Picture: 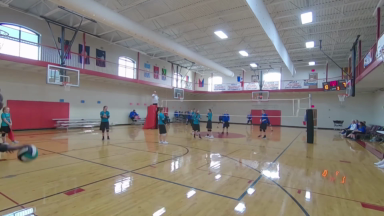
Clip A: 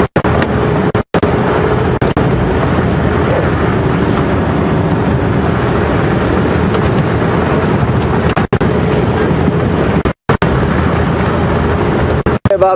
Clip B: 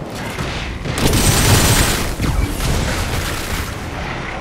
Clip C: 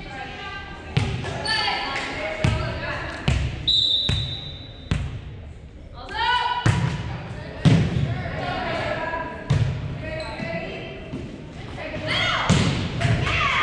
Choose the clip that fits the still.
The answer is C